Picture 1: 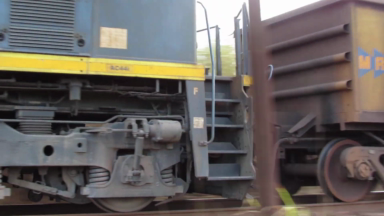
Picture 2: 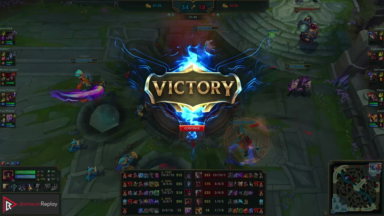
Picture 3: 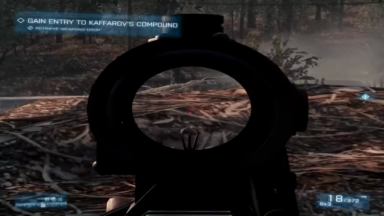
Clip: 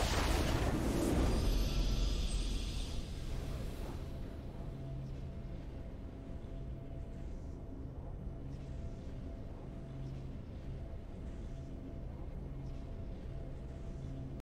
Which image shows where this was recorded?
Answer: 2